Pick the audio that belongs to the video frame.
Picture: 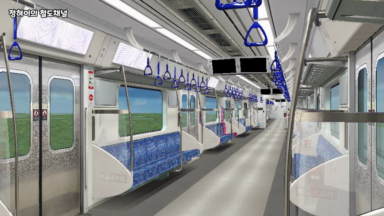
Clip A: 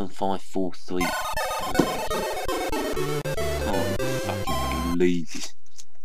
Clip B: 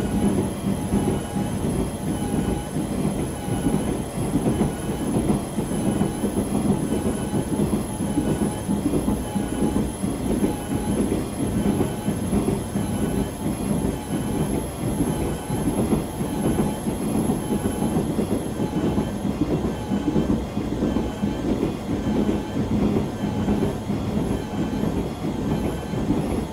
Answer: B